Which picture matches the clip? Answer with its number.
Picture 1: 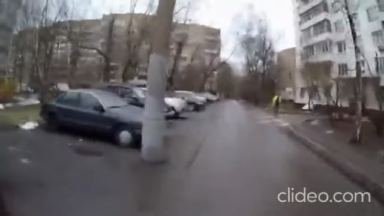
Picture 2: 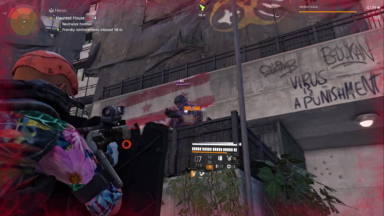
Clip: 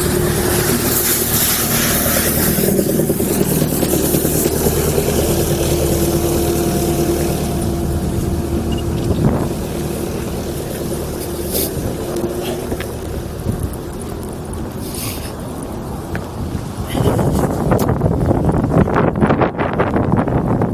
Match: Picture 1